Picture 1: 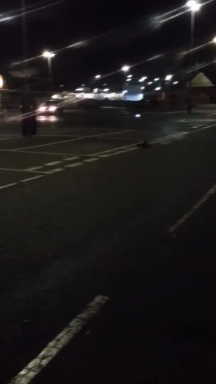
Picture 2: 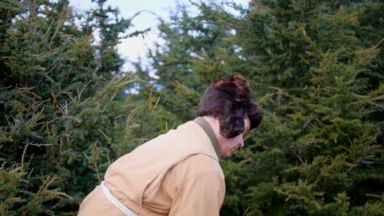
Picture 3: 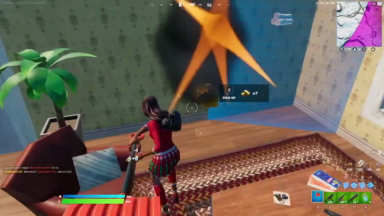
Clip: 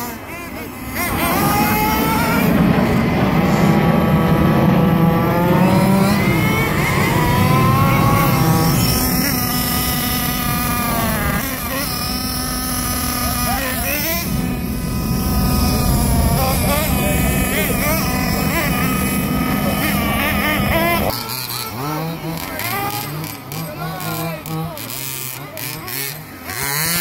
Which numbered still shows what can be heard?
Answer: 1